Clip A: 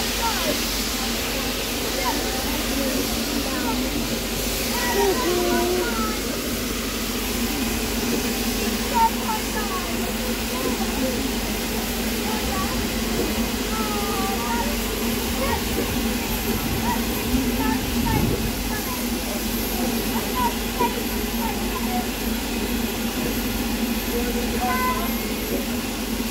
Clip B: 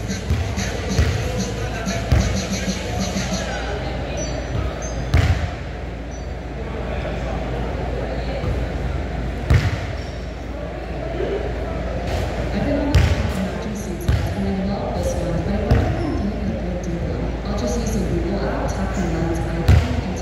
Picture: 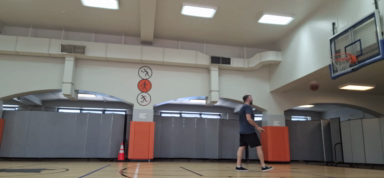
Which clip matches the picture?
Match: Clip B